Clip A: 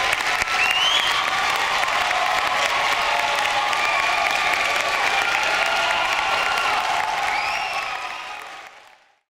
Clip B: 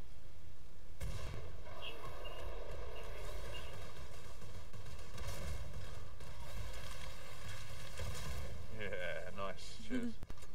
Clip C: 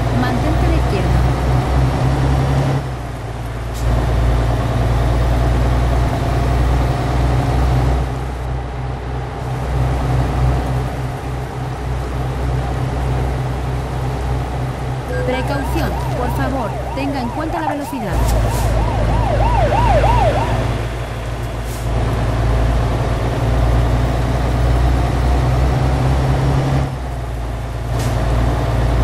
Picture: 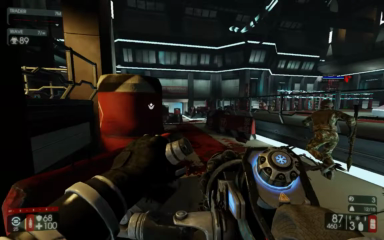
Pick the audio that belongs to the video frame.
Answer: B